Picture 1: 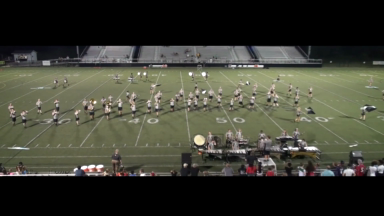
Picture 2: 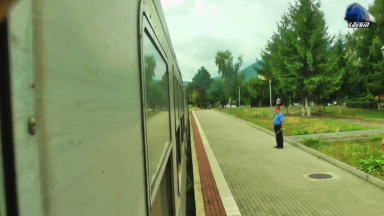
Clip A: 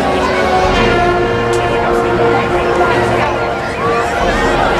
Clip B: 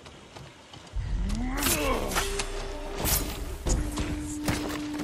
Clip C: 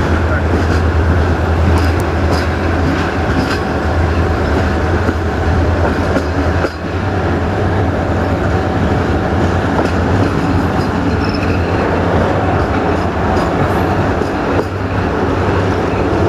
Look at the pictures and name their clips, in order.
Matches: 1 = A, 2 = C